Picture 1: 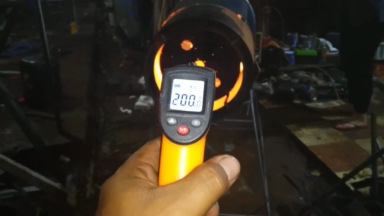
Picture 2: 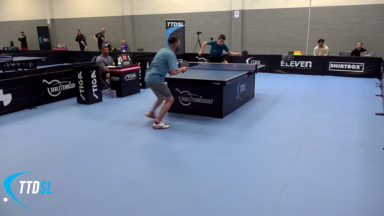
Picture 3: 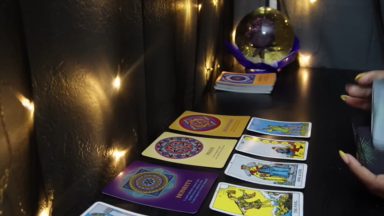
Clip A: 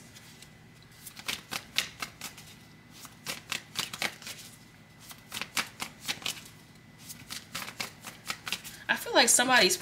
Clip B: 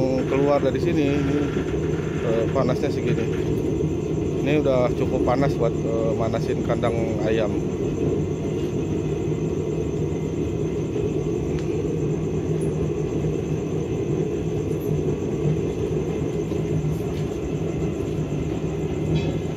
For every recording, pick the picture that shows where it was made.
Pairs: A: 3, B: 1